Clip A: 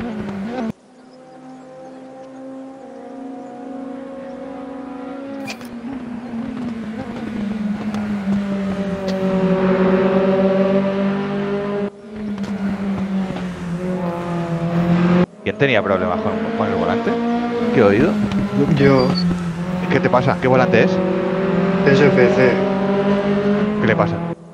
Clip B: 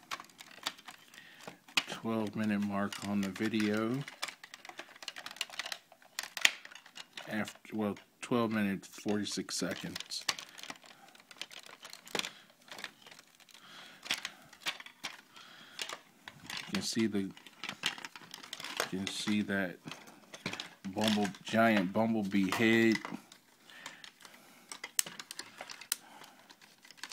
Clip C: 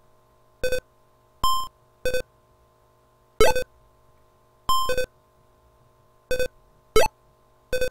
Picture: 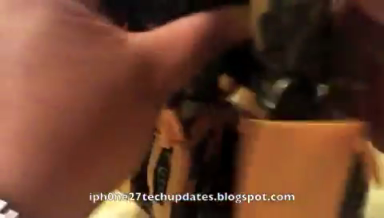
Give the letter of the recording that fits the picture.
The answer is B